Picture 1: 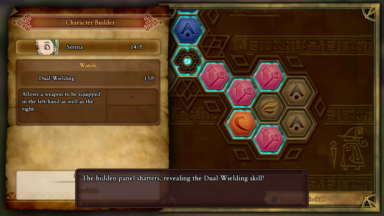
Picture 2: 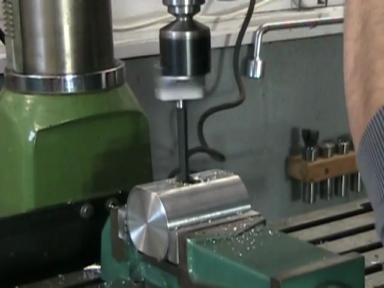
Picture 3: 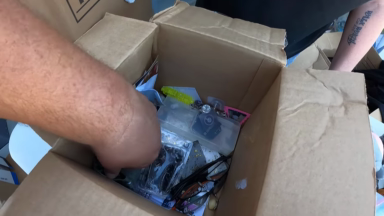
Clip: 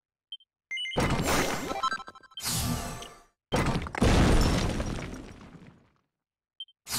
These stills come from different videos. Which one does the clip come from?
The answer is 1